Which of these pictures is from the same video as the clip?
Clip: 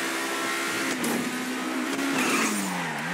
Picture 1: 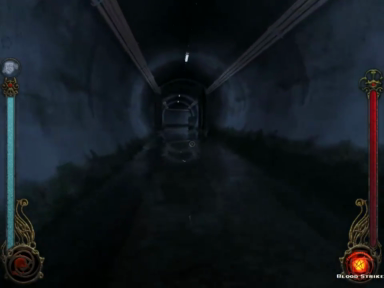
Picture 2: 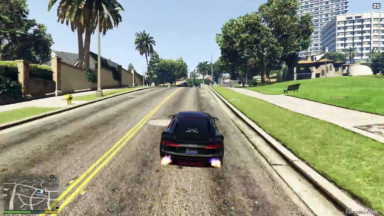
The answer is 2